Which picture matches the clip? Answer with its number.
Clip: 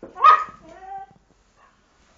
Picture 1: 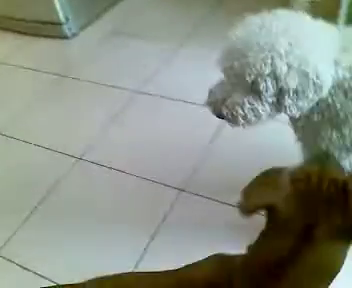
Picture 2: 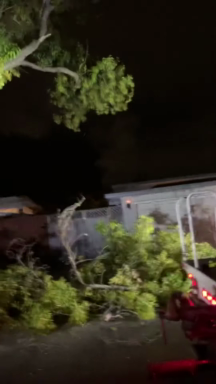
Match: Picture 1